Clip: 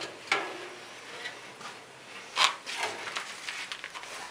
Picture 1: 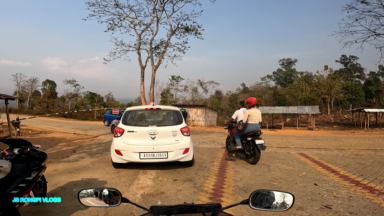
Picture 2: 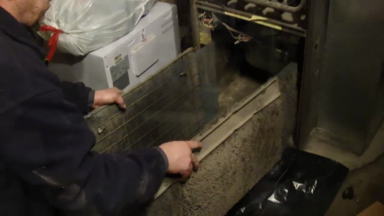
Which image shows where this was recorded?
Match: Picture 2